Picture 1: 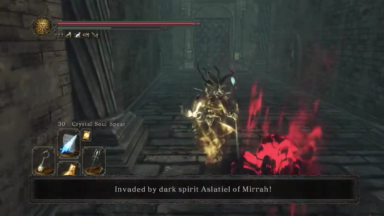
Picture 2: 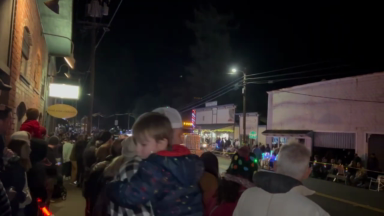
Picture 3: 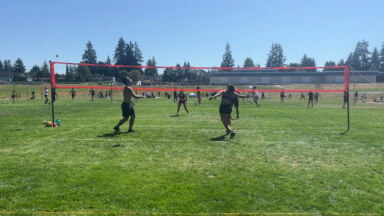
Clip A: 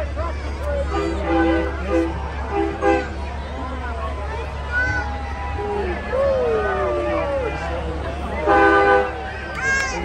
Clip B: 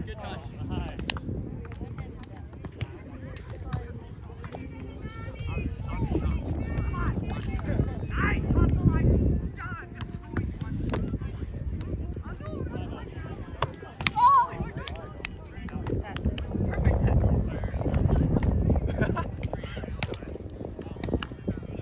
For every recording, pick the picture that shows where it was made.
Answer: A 2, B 3